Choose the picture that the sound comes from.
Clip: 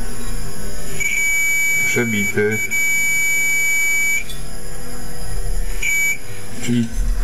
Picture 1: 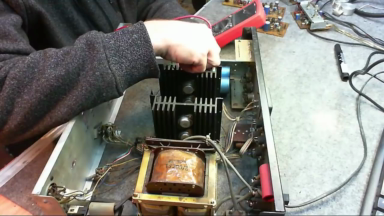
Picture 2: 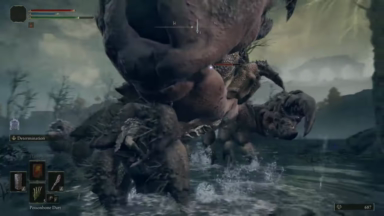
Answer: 1